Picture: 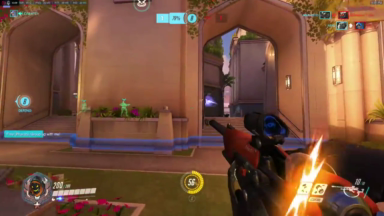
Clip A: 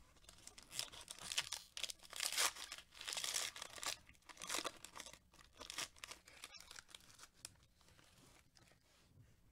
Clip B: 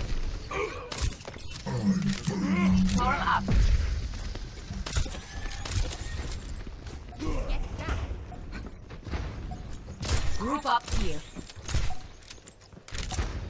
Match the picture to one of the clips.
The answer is B